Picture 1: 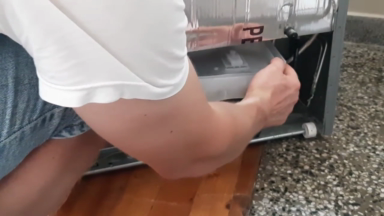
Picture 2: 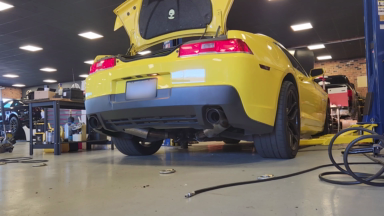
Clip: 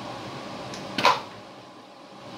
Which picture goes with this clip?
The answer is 1